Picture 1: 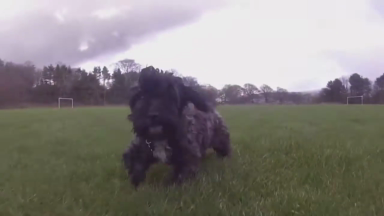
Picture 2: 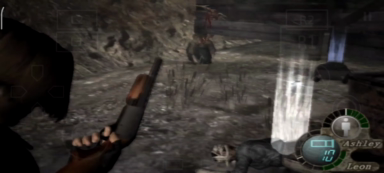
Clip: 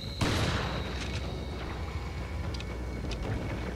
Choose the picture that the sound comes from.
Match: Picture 2